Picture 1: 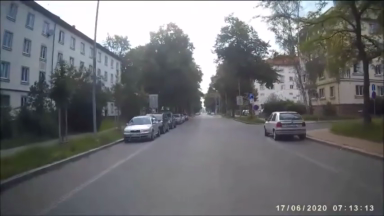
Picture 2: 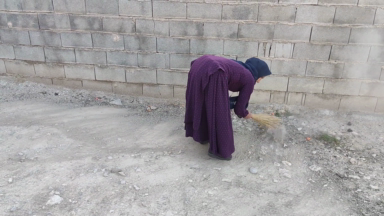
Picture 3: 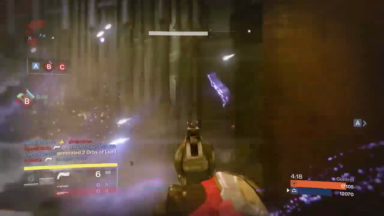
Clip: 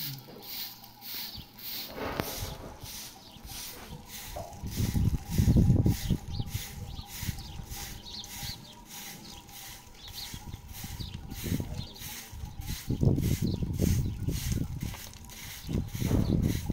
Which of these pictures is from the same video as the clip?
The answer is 2